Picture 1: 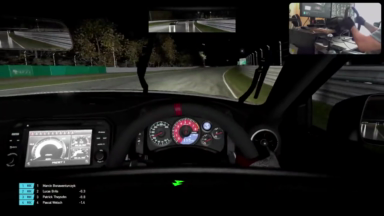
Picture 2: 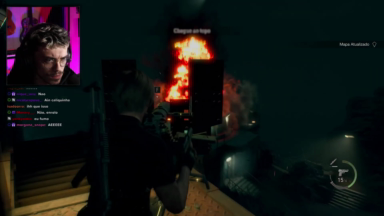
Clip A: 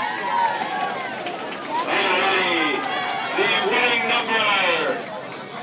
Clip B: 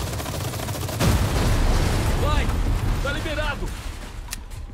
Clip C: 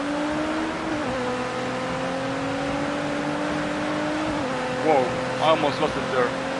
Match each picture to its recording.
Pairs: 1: C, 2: B